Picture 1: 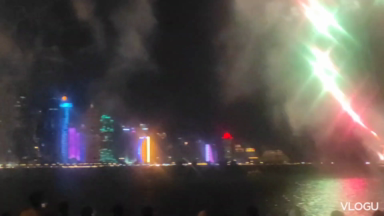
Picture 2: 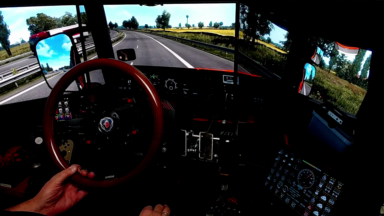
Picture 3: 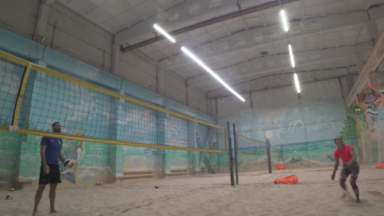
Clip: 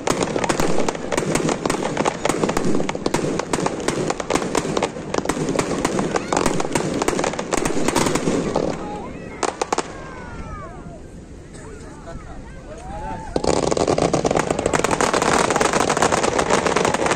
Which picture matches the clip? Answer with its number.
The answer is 1